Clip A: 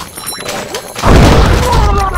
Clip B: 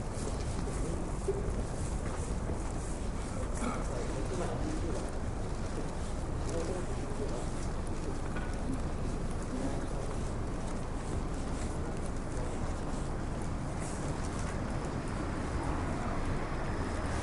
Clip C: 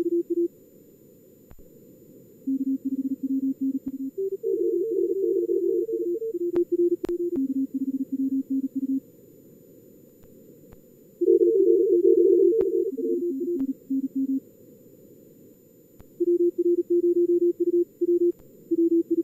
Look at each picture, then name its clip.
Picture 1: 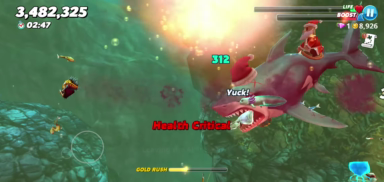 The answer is A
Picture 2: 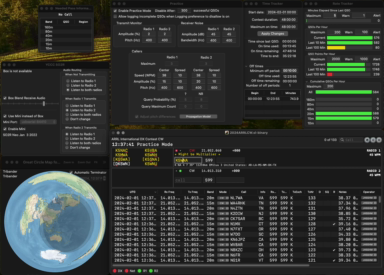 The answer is C